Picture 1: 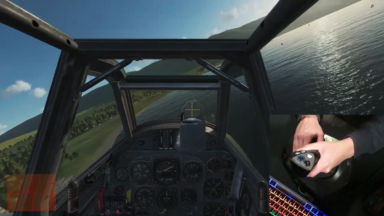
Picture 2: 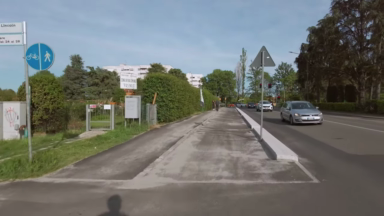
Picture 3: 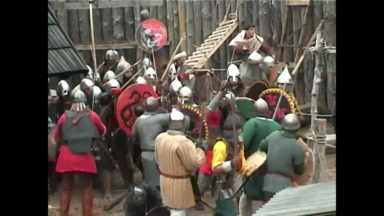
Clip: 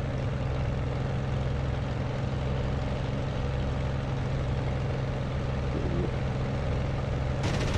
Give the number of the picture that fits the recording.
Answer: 1